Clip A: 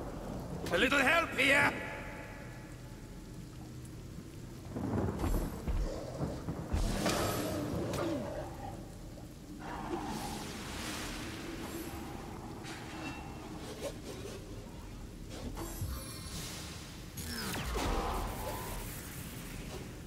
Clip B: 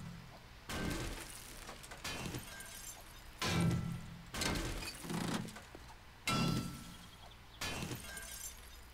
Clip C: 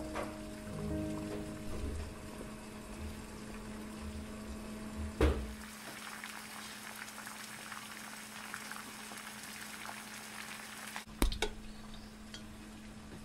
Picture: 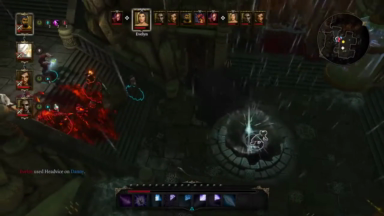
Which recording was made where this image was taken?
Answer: A